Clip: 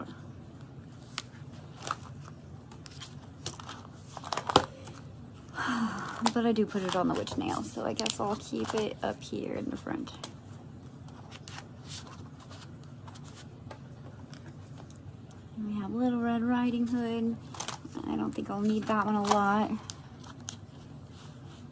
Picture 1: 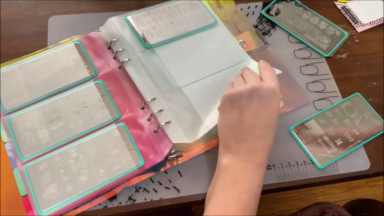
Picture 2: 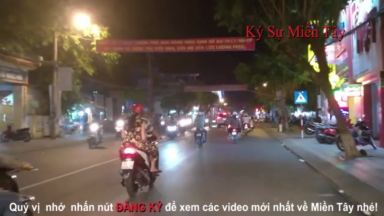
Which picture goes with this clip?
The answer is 1